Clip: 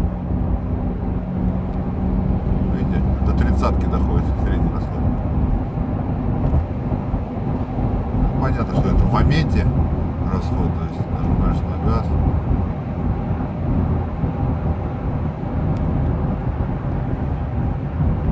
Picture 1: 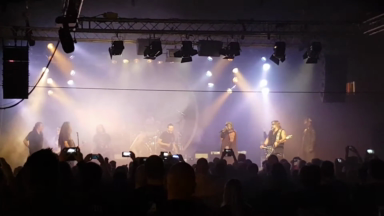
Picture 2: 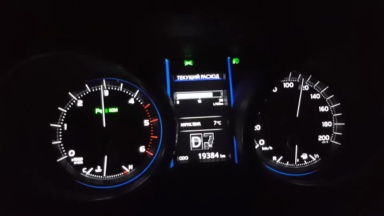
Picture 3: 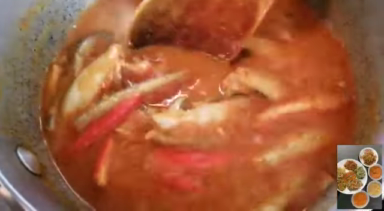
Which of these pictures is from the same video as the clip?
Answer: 2